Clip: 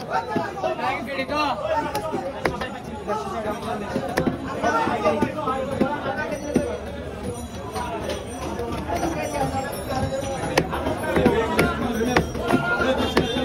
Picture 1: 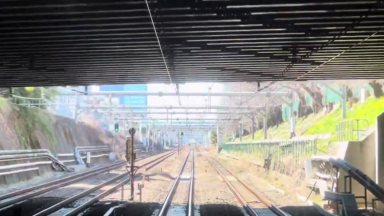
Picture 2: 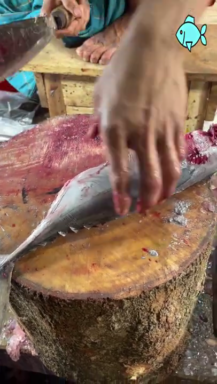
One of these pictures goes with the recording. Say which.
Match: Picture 2